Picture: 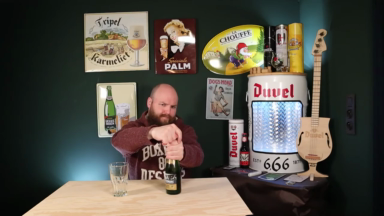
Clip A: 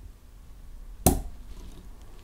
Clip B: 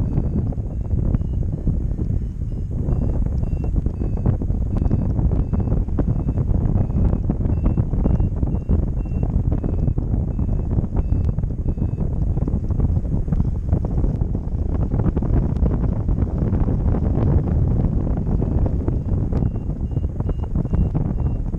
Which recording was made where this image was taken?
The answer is A